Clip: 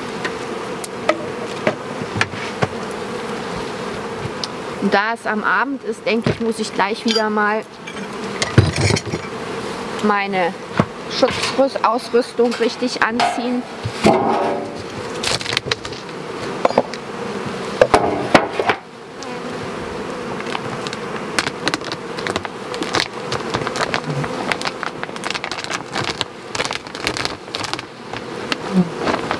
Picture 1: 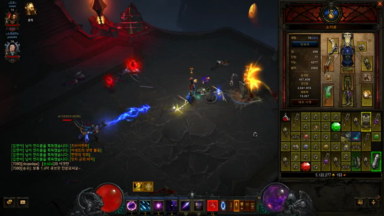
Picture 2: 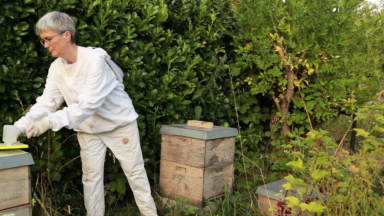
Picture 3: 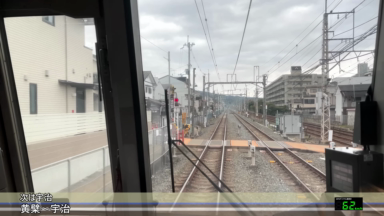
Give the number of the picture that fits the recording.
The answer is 2